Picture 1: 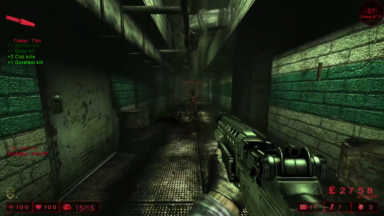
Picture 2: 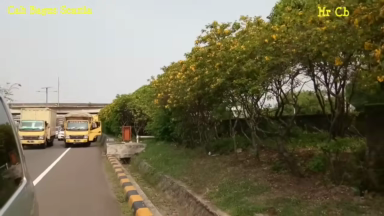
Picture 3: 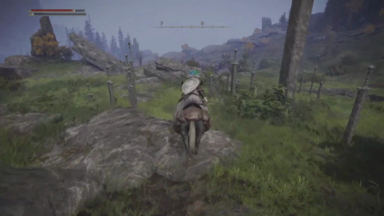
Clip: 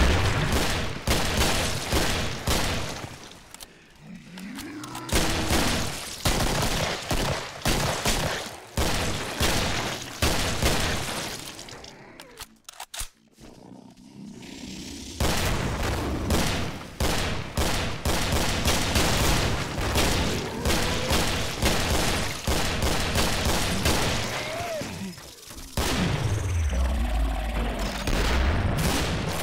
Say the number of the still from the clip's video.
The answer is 1